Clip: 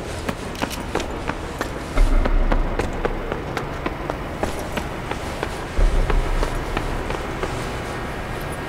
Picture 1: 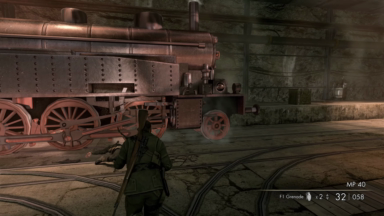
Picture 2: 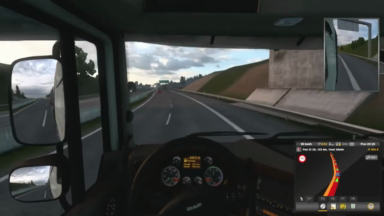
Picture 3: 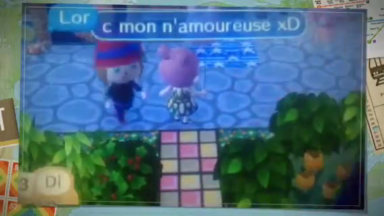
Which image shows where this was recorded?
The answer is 1